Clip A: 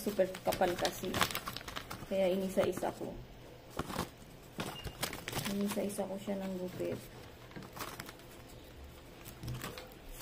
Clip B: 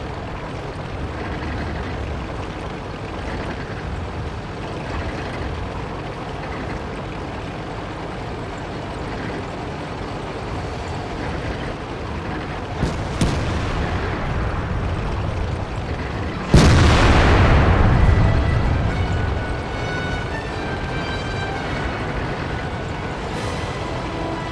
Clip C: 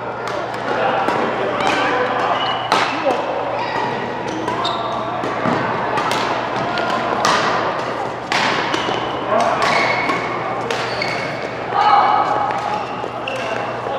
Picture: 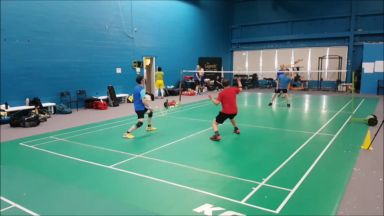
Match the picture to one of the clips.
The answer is C